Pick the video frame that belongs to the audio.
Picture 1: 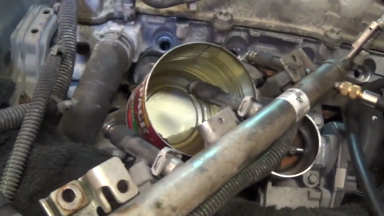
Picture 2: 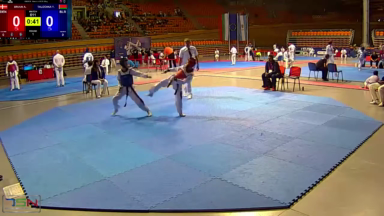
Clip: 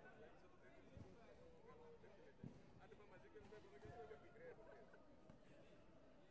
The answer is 2